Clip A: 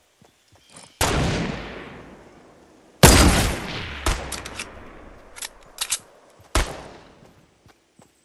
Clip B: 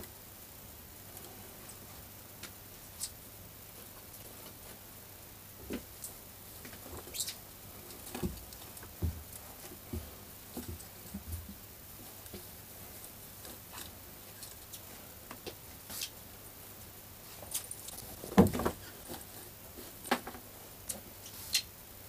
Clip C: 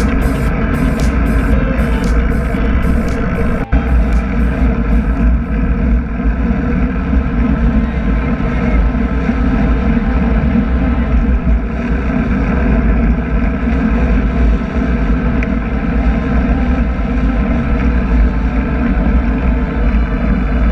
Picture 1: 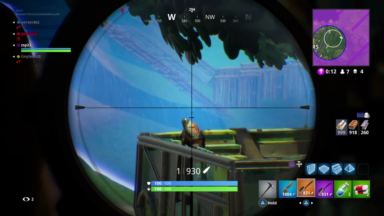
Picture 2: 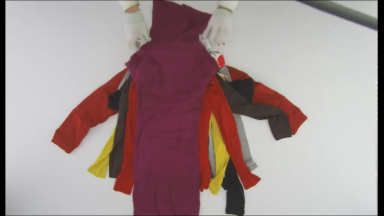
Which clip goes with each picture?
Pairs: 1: A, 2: B